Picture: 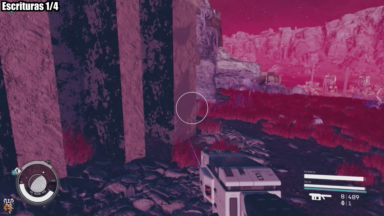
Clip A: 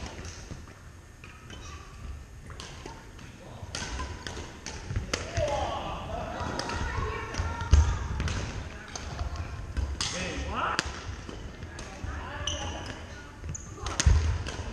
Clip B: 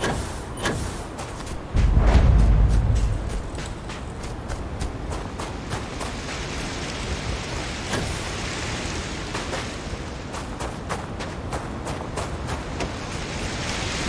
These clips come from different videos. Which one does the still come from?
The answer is B